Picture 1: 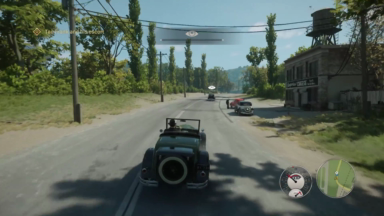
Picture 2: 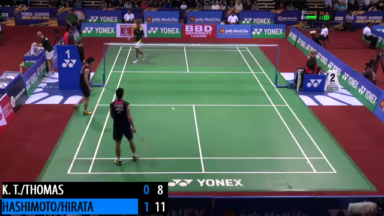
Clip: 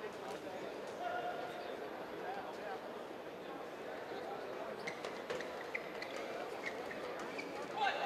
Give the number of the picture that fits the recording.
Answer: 2